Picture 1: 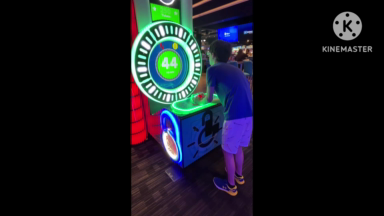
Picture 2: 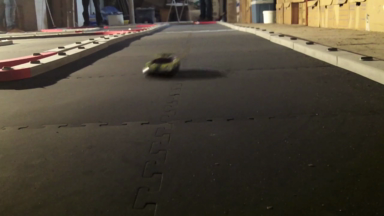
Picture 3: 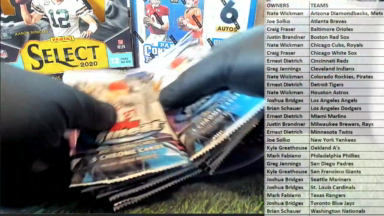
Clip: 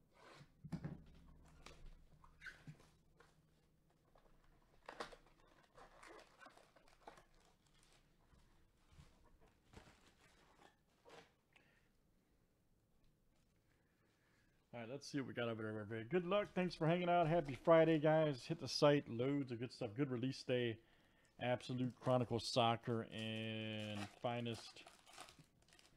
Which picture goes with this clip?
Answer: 3